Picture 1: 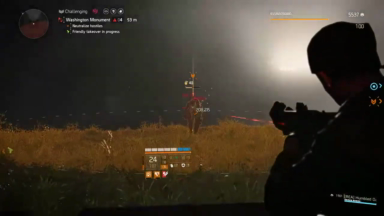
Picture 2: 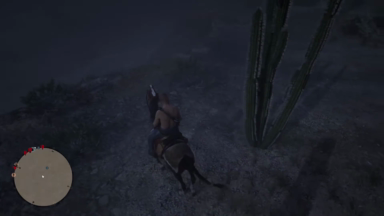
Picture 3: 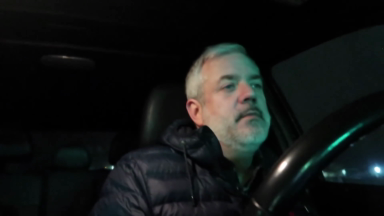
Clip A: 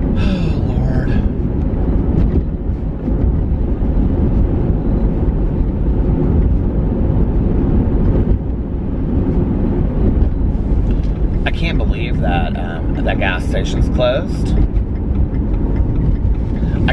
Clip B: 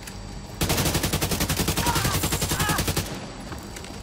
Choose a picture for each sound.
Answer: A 3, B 1